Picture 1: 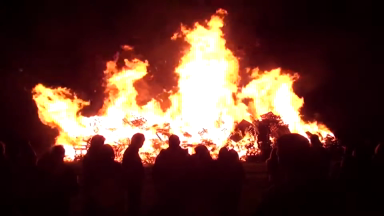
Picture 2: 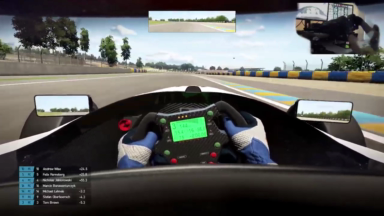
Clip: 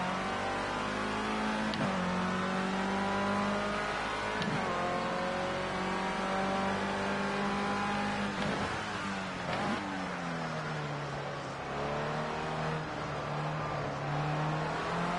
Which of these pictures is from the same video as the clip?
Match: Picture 2